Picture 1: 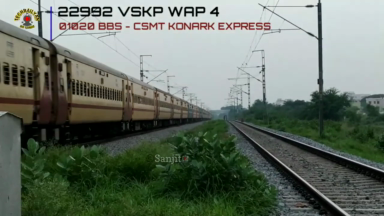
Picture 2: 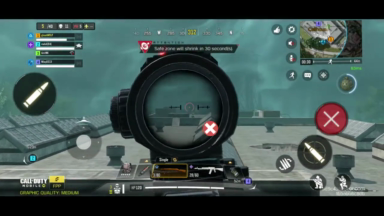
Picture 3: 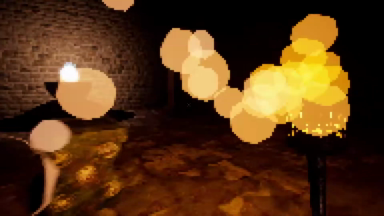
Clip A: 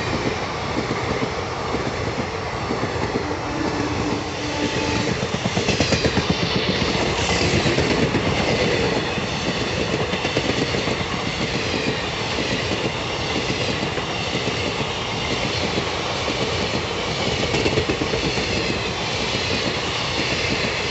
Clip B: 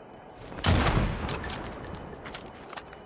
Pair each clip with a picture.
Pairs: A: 1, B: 2